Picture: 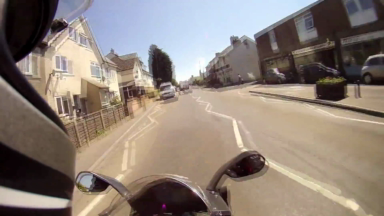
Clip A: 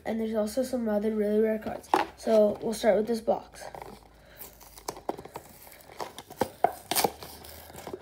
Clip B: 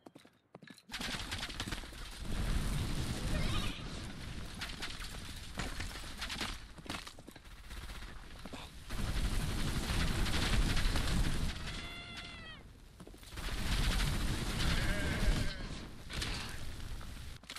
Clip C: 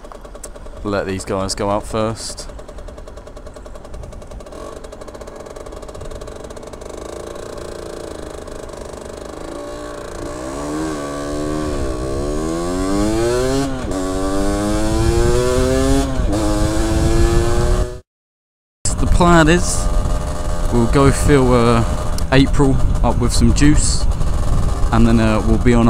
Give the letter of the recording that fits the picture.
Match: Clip C